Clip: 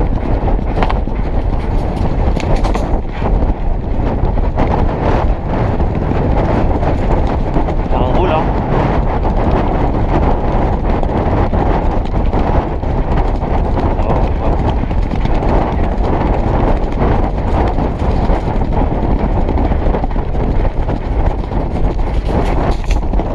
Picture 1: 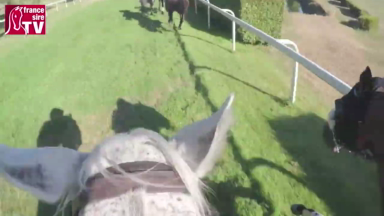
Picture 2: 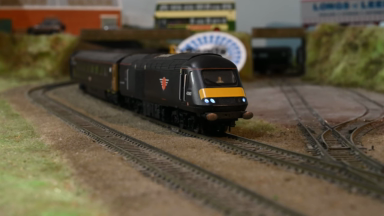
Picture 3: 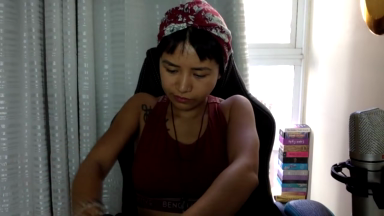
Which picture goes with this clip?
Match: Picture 1